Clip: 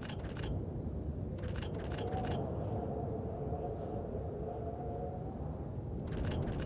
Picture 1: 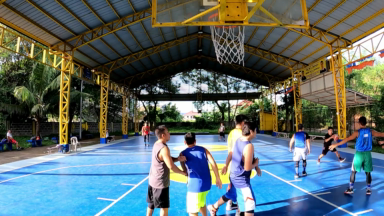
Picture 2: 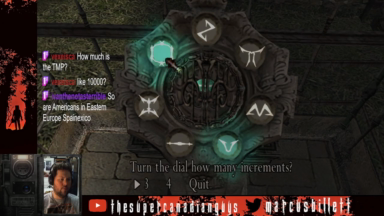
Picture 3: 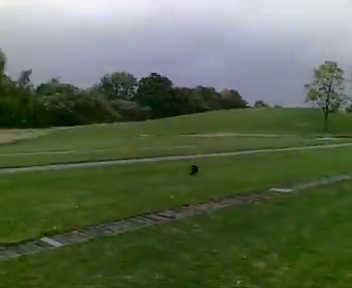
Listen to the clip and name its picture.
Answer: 2